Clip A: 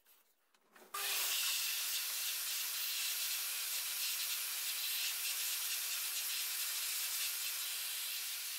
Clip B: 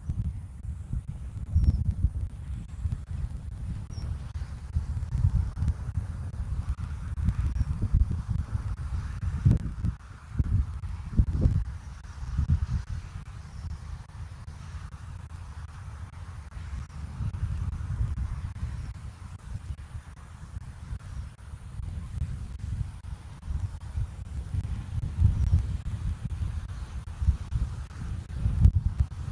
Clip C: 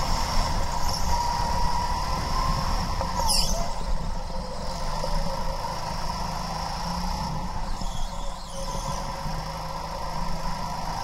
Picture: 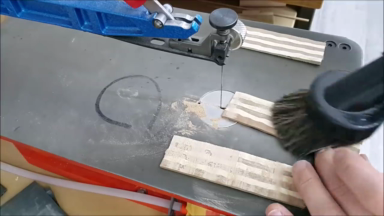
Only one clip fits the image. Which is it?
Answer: A